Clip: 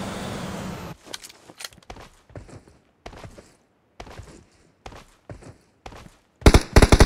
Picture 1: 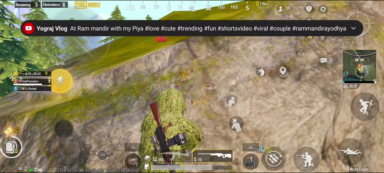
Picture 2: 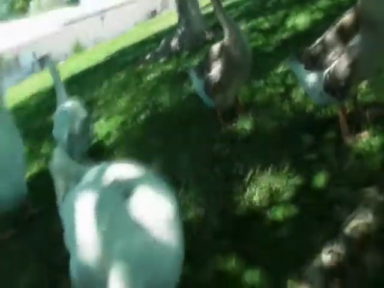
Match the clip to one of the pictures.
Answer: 1